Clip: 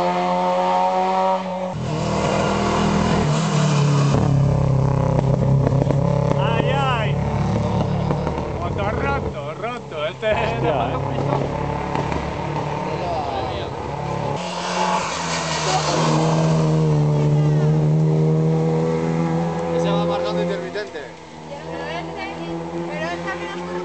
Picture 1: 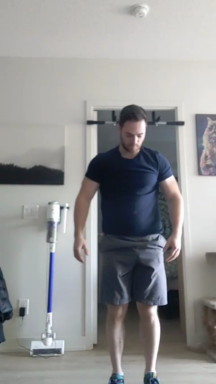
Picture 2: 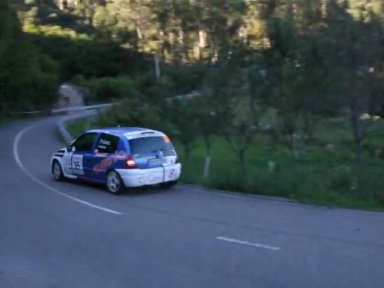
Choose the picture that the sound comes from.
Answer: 2